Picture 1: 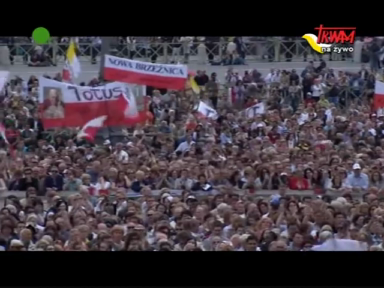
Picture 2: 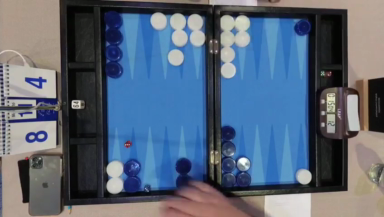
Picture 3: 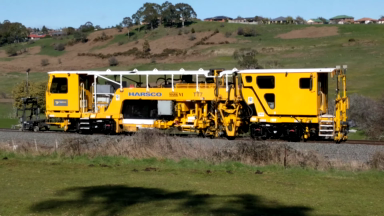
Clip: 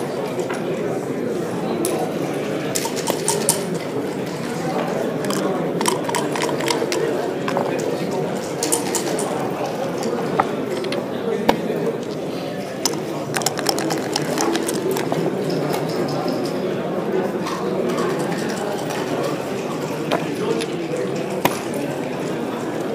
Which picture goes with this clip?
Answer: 2